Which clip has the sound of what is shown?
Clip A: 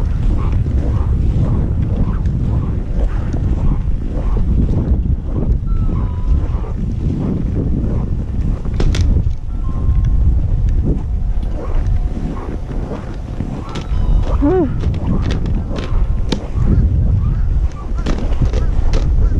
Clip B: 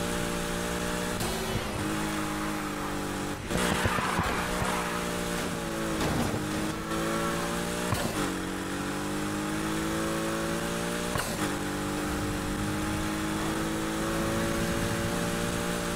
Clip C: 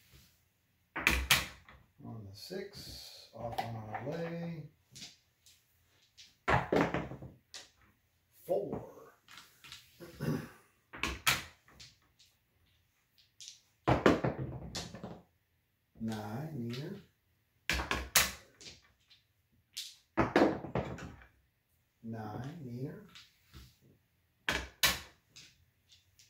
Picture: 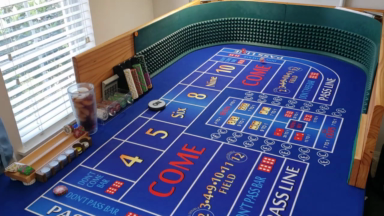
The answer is C